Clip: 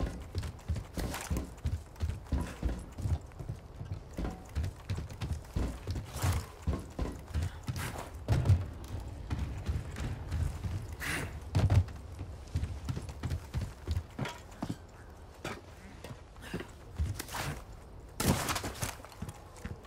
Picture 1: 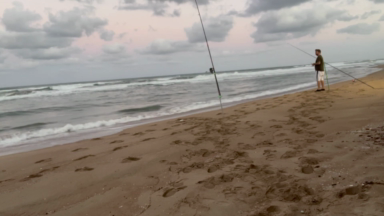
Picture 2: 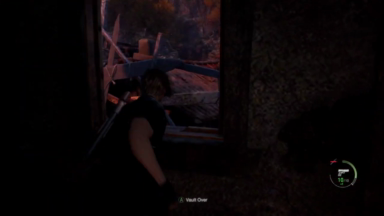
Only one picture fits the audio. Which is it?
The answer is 2